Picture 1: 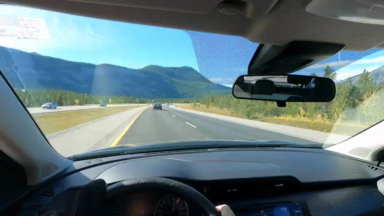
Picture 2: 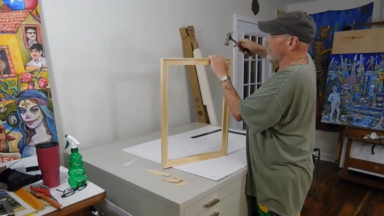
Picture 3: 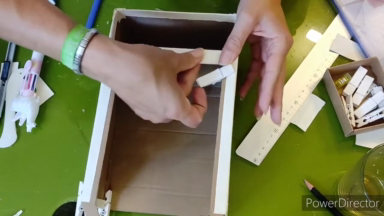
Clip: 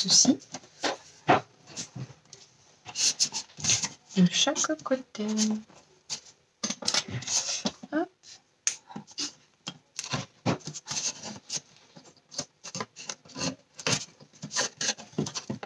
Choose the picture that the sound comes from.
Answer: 3